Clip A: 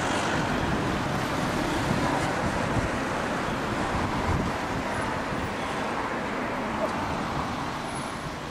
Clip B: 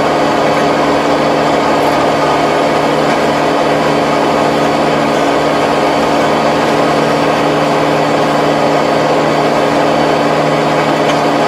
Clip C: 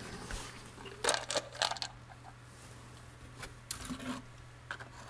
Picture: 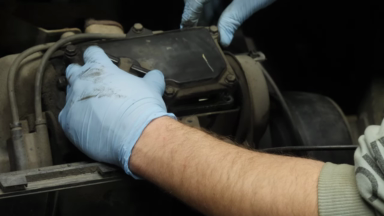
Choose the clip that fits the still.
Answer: C